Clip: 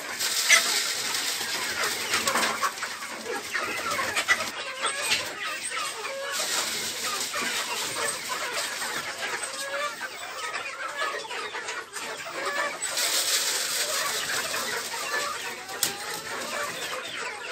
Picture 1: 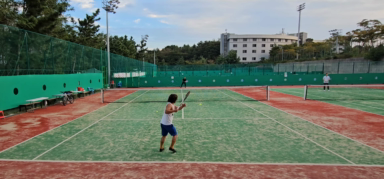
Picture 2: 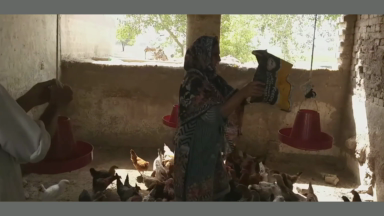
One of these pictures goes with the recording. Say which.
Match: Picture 2